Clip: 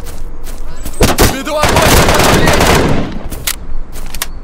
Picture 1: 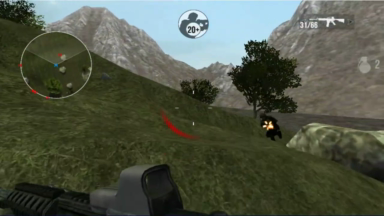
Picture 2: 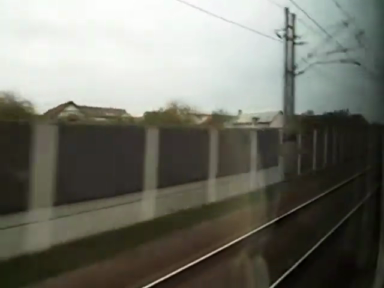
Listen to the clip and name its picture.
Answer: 1